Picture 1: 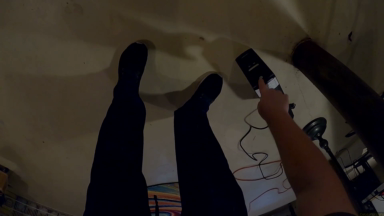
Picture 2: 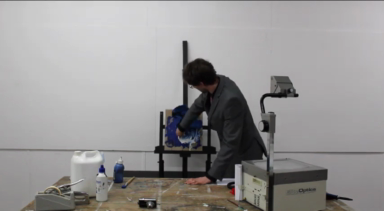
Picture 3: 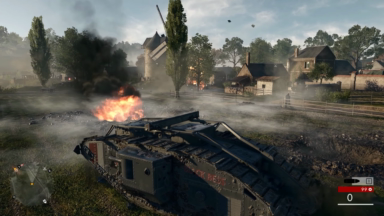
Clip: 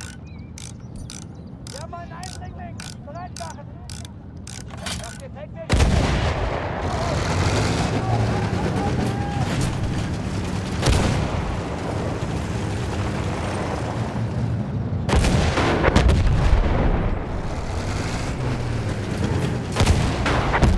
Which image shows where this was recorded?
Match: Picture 3